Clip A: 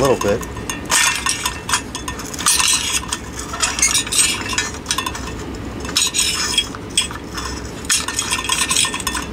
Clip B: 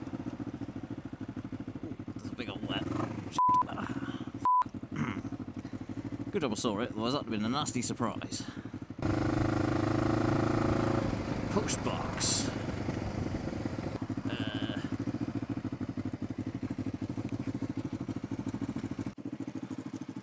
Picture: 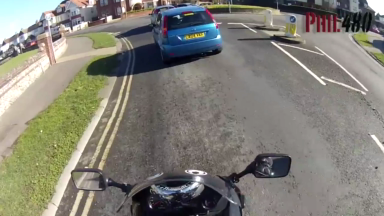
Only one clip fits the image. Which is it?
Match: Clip B